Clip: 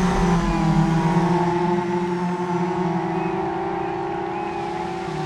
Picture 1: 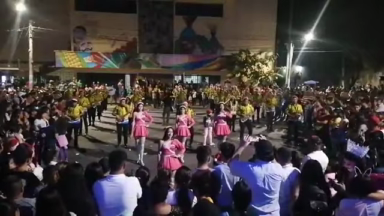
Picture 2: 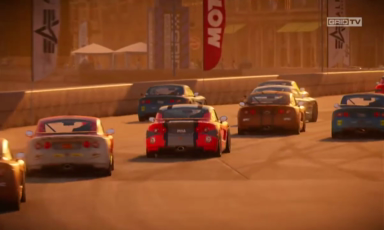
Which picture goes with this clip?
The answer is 2